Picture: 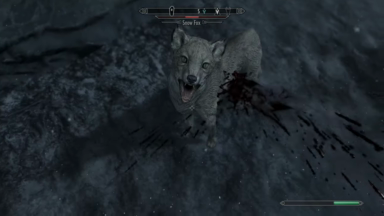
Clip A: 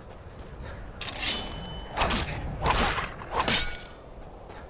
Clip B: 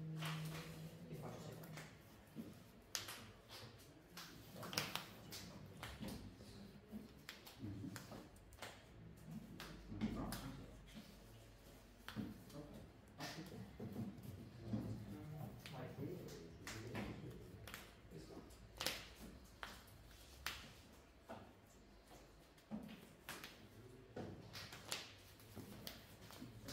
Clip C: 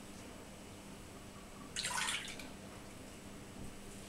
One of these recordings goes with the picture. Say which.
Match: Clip A